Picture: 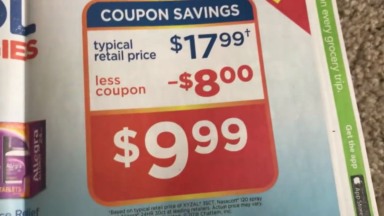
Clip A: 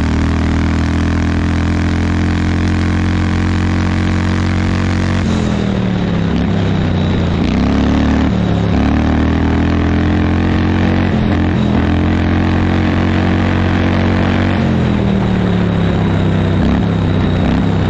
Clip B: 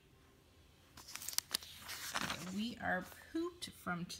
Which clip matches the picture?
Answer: B